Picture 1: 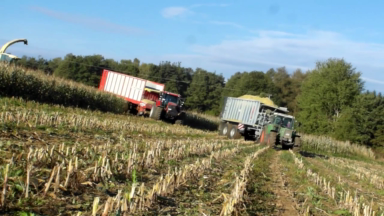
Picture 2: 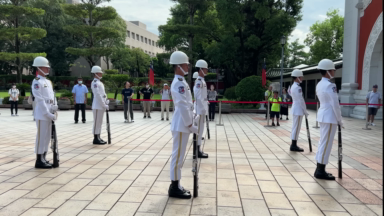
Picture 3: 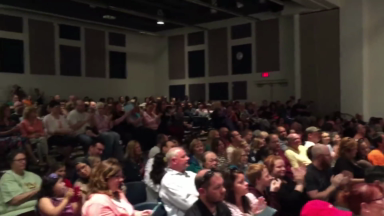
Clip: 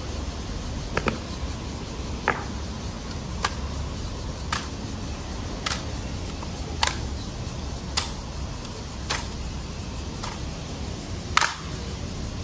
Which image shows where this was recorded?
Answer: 2